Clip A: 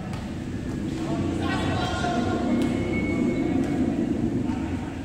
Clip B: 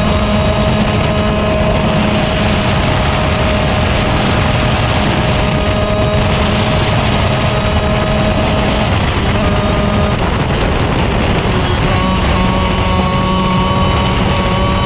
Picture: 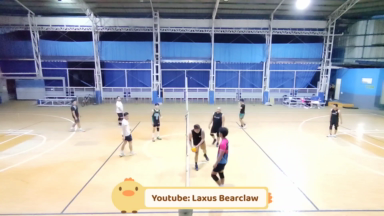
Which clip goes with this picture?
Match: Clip A